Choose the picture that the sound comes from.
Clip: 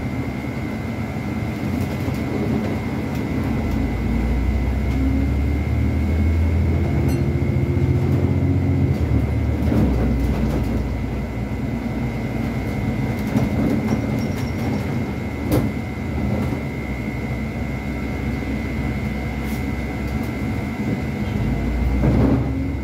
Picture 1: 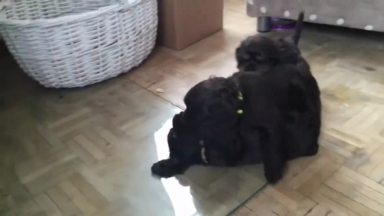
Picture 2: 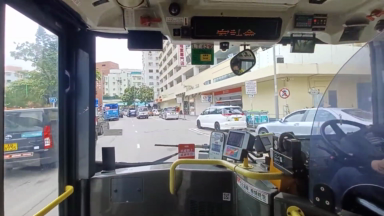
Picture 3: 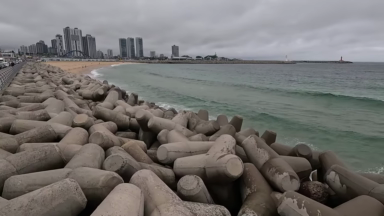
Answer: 2